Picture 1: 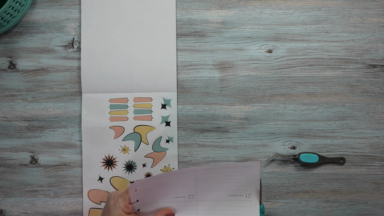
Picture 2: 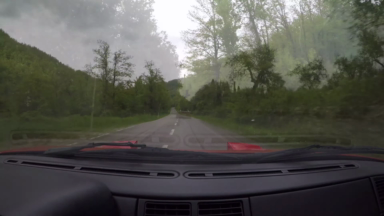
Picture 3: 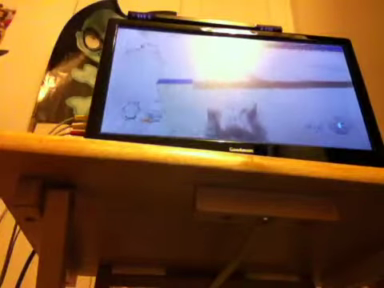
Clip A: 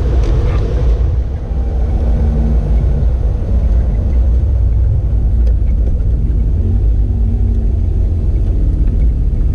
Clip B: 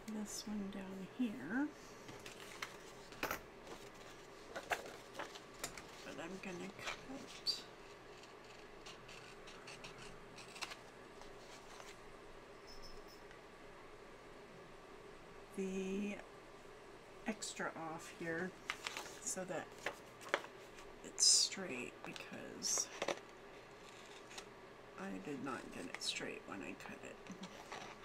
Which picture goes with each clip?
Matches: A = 2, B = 1